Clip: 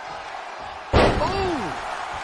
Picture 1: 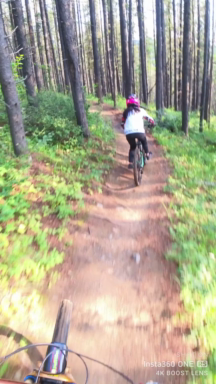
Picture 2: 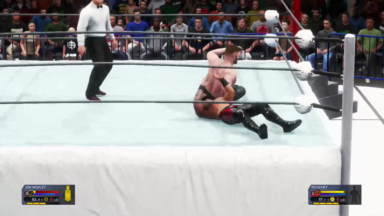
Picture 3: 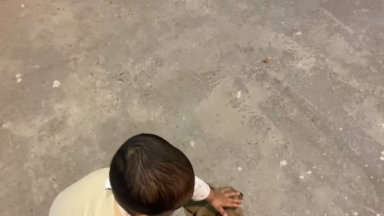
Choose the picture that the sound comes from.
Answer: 2